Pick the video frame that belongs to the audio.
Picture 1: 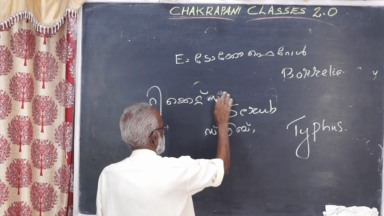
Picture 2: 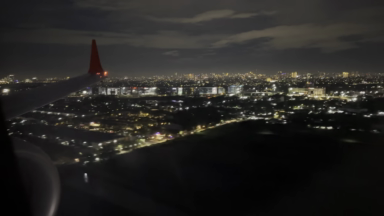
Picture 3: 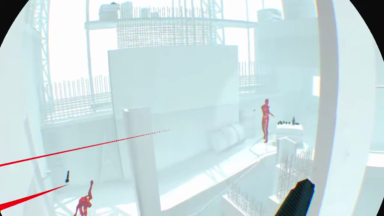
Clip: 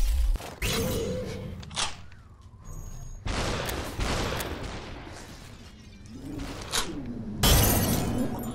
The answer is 3